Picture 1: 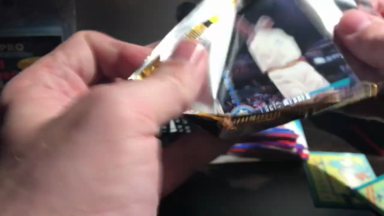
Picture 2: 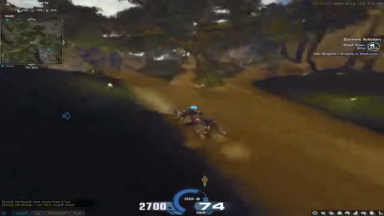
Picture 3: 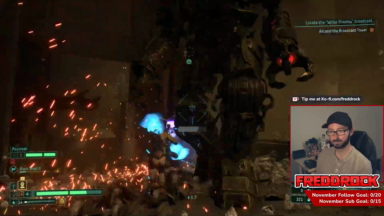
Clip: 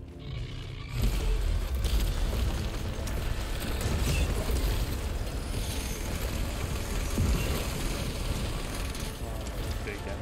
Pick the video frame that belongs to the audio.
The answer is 3